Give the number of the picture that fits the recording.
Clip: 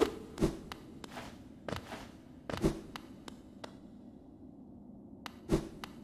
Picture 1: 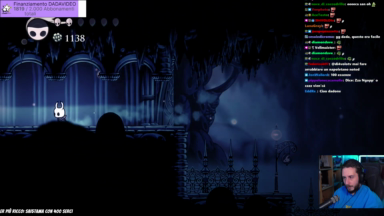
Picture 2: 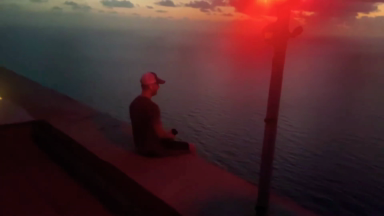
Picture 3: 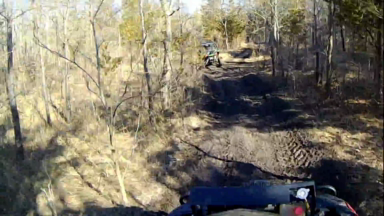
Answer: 1